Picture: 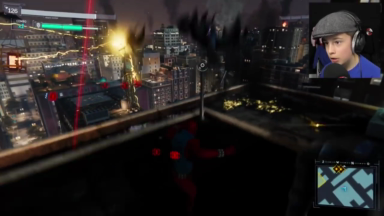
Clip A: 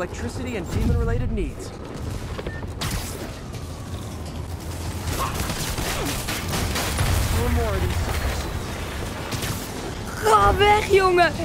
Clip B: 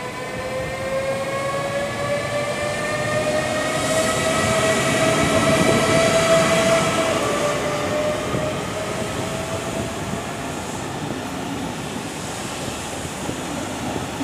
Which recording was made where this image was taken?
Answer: A